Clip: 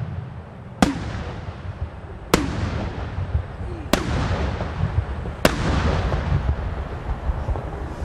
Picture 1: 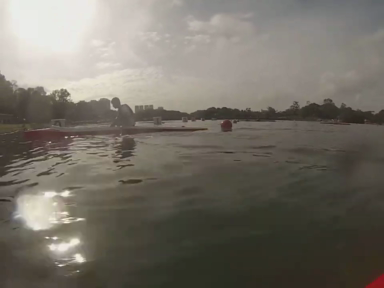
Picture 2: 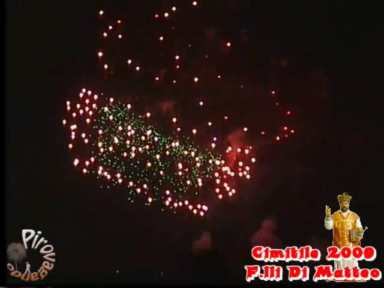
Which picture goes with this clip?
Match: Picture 2